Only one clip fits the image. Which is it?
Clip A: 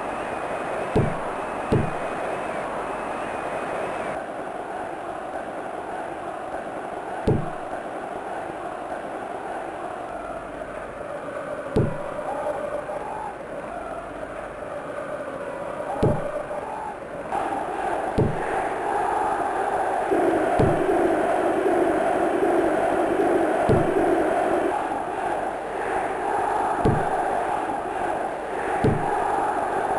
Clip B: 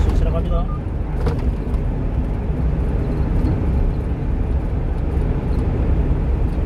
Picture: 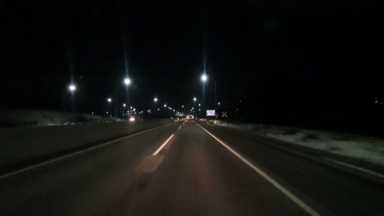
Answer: B